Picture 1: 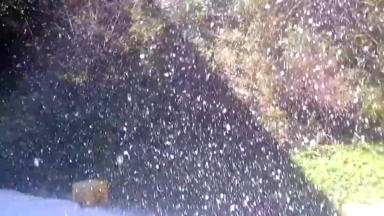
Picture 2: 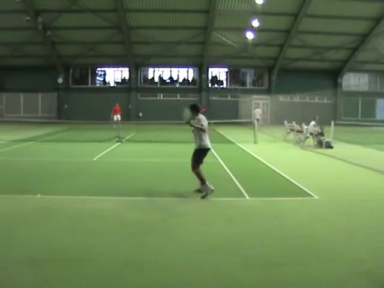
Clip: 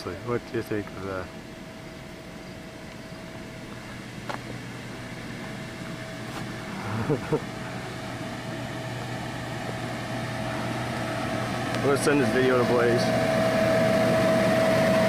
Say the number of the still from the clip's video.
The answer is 1